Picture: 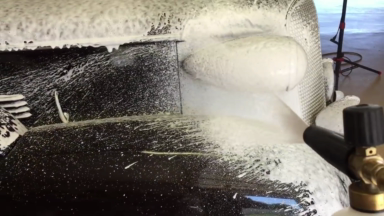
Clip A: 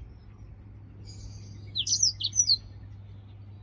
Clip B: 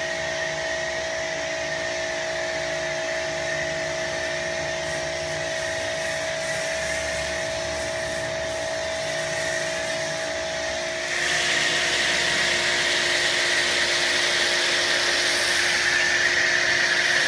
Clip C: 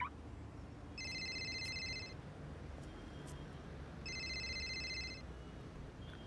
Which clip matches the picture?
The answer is B